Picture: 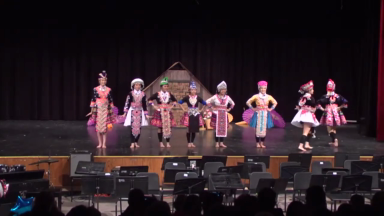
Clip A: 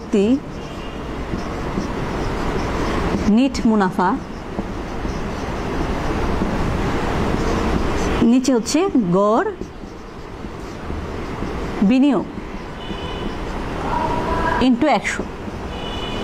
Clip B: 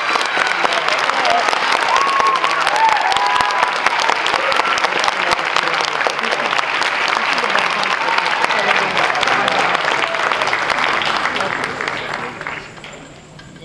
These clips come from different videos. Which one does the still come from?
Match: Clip B